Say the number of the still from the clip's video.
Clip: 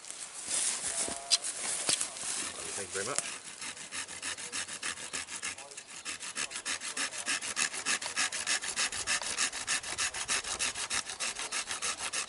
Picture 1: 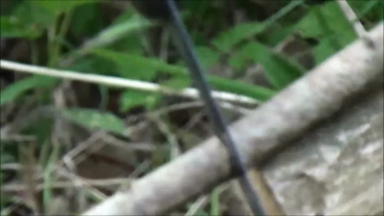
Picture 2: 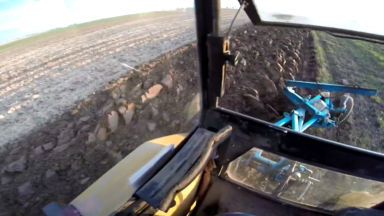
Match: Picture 1